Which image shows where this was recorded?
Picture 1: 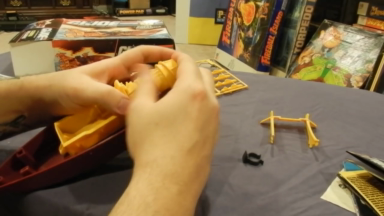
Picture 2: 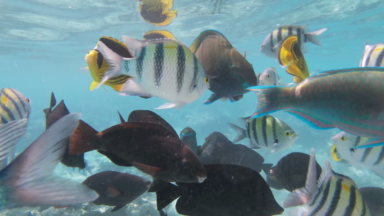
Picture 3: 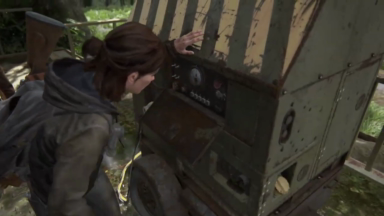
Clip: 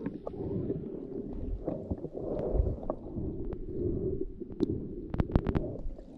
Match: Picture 2